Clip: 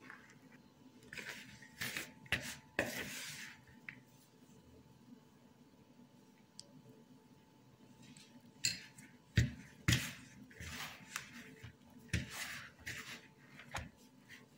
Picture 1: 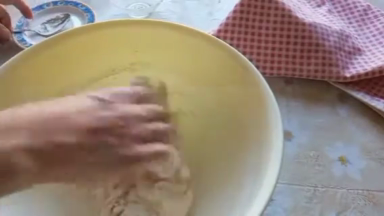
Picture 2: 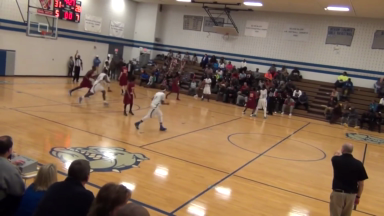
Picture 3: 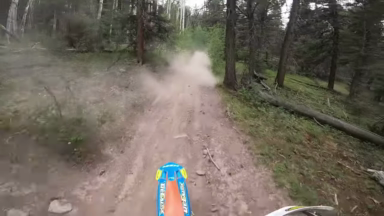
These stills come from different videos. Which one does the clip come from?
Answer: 1